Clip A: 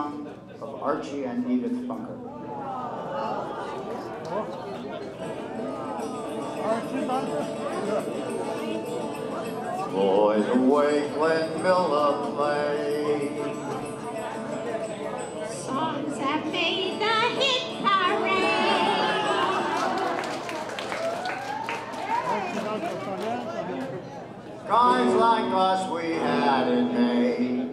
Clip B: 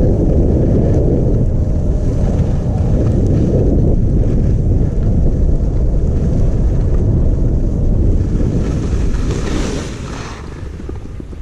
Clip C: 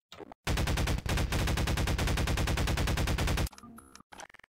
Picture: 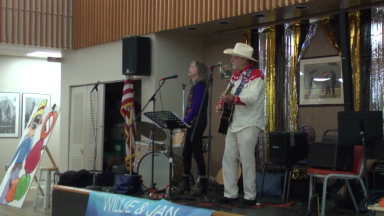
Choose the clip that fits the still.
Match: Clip A